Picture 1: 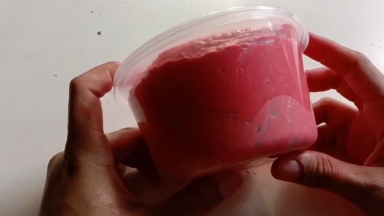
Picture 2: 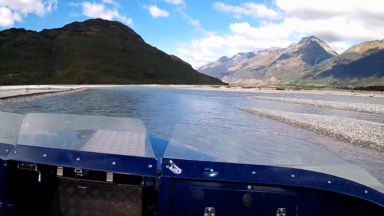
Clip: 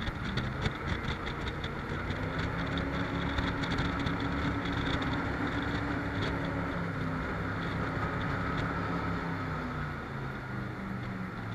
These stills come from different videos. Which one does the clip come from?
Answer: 2